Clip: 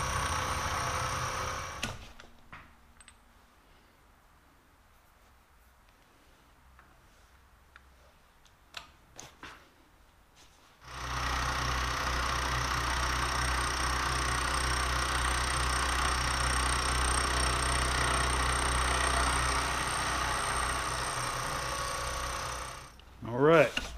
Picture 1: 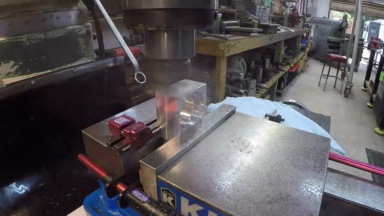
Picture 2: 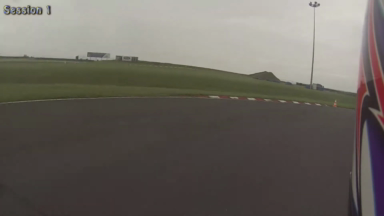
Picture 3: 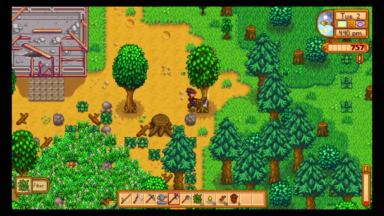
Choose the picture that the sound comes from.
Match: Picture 1